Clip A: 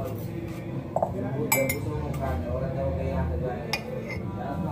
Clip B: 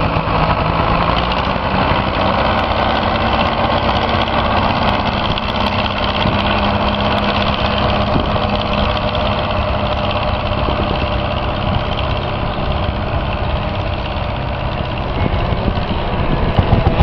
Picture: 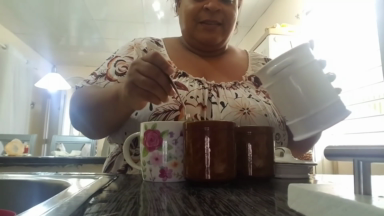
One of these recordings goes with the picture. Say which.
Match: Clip A